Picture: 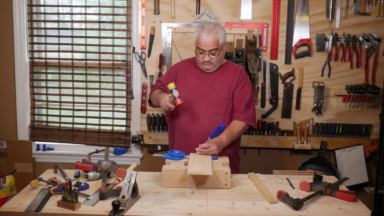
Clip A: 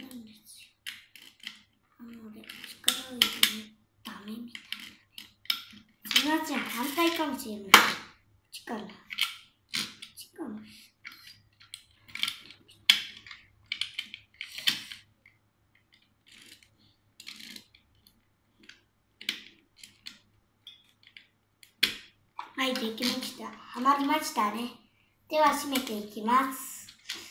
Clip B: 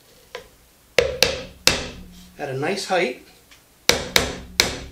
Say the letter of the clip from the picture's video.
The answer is B